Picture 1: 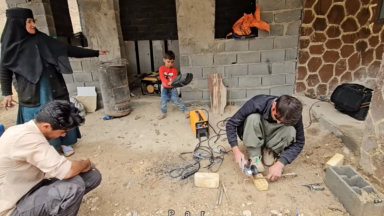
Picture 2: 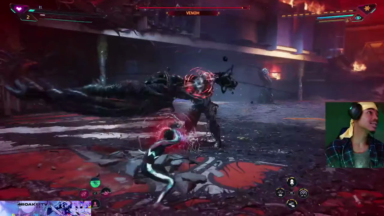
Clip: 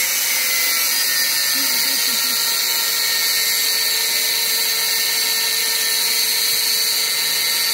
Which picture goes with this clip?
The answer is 1